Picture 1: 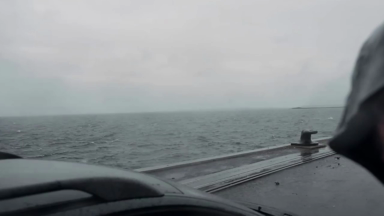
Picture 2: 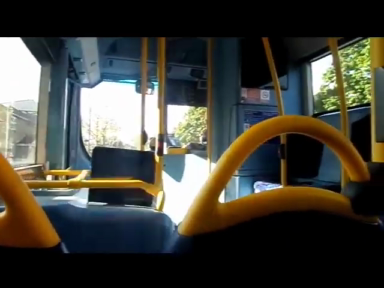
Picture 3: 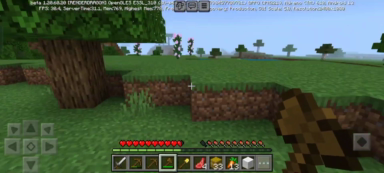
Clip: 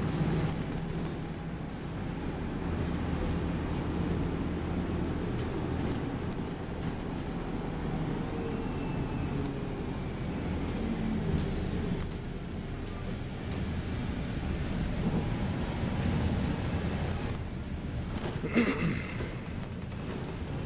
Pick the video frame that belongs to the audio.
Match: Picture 2